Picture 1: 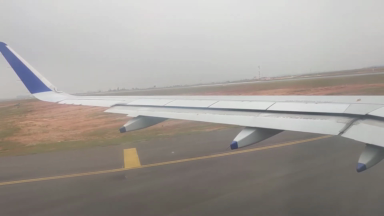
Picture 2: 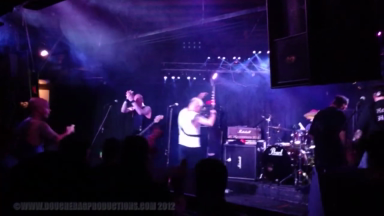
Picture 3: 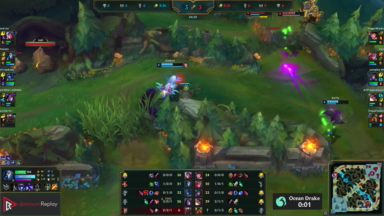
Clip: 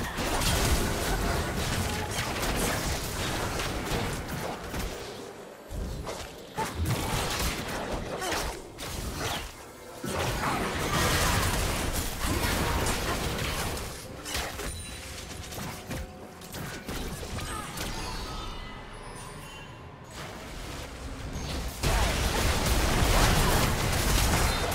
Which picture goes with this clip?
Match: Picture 3